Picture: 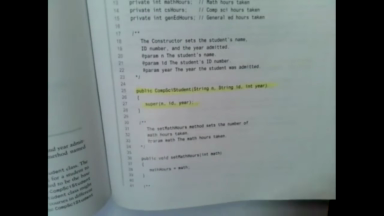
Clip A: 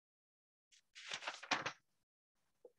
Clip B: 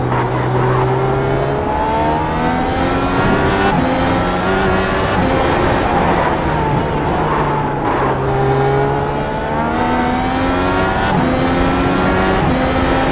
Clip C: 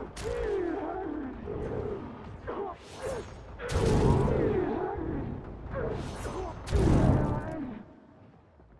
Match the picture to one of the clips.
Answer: A